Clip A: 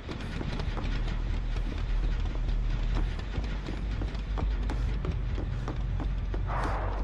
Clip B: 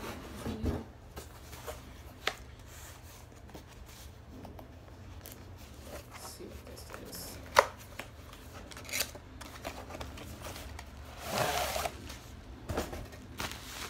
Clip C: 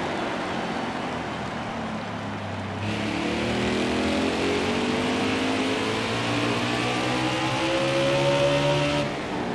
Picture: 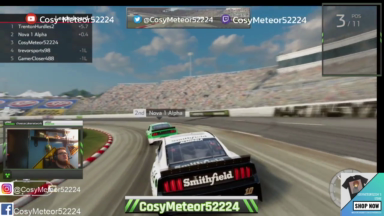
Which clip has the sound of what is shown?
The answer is C